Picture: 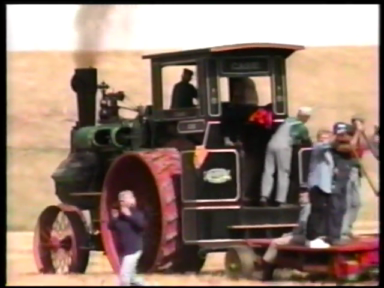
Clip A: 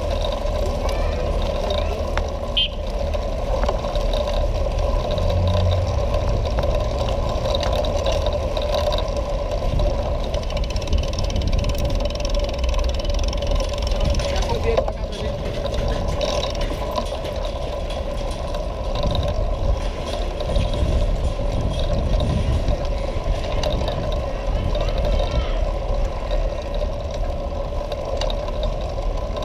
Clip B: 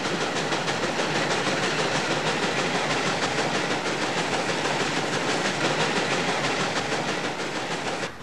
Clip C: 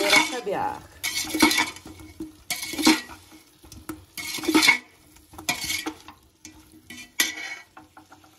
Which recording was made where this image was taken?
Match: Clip B